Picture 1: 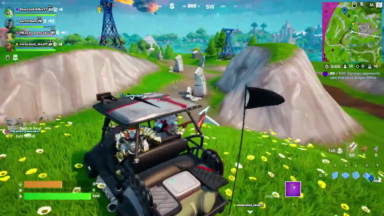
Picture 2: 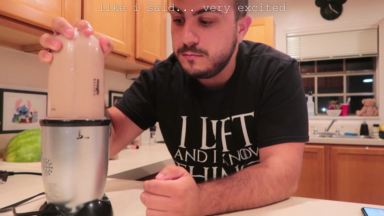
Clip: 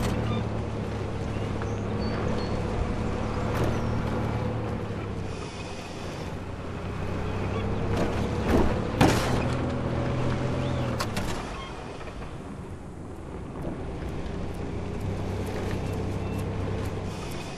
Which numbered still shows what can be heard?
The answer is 1